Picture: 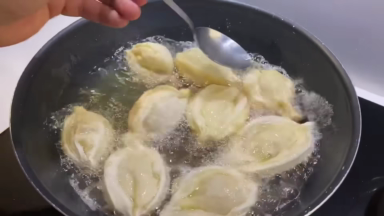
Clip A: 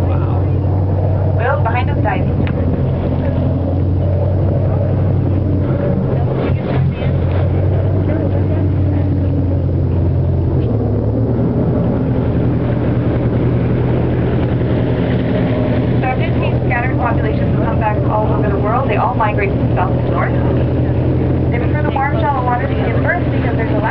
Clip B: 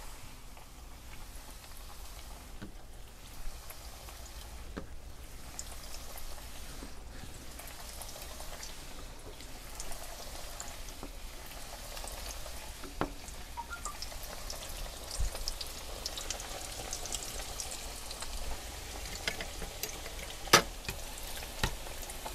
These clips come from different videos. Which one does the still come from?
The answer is B